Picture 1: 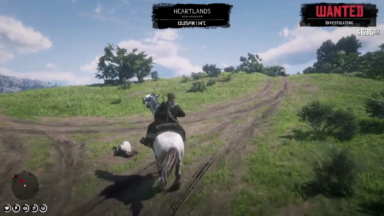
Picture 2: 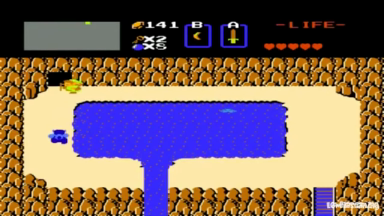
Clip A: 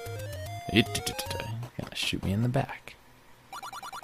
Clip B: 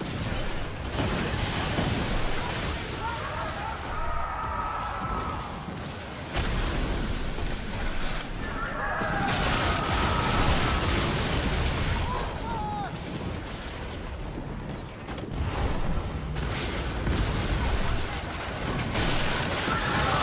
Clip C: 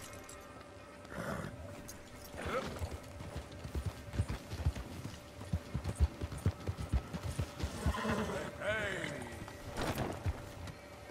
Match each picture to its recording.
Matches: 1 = C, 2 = A